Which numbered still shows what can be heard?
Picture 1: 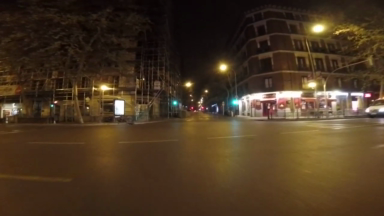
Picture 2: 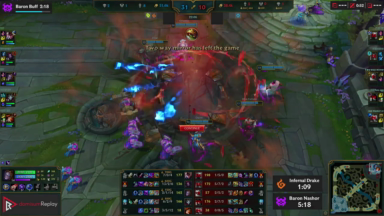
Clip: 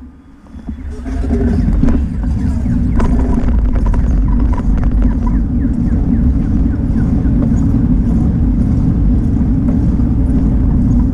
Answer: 1